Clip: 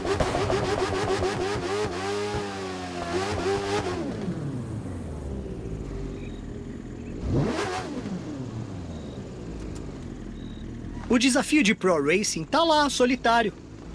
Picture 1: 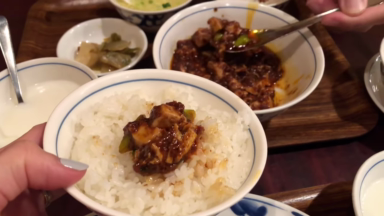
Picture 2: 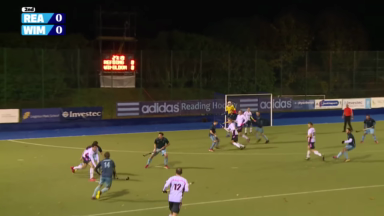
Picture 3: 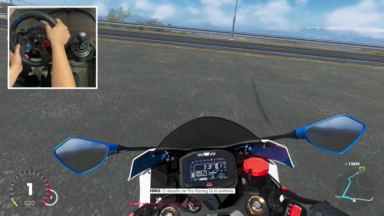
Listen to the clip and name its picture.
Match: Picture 3